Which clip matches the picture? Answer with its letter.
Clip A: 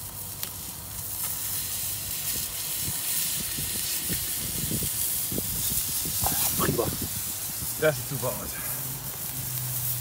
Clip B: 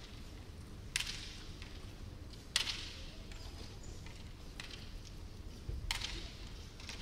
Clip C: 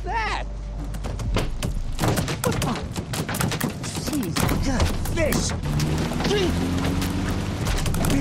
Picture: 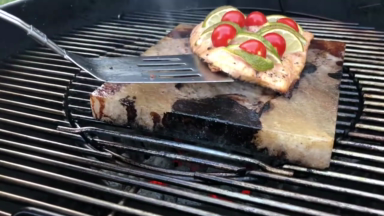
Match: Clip A